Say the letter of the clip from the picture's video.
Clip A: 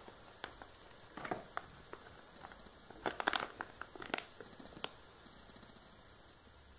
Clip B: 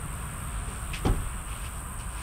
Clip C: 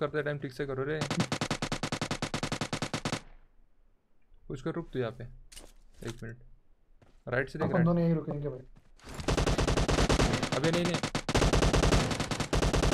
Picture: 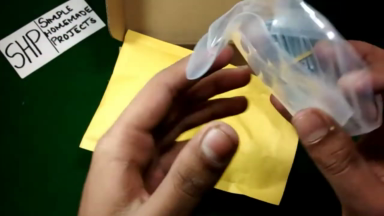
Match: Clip A